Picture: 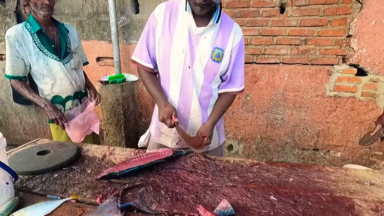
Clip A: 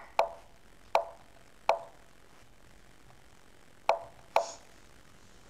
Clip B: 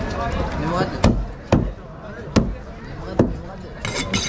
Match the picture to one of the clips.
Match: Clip B